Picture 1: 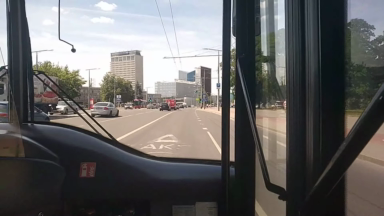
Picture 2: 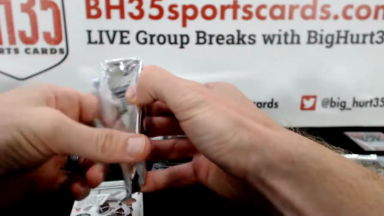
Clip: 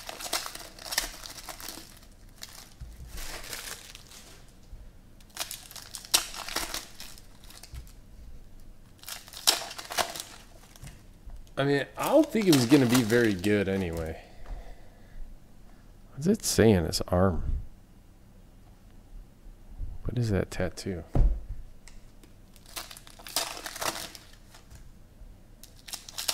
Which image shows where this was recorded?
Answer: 2